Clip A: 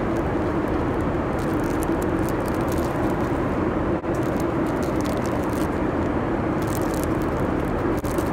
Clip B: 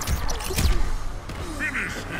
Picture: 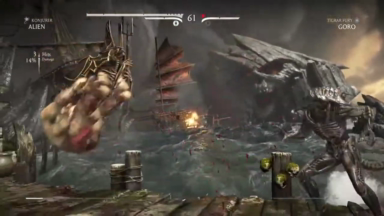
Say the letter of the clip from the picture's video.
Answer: B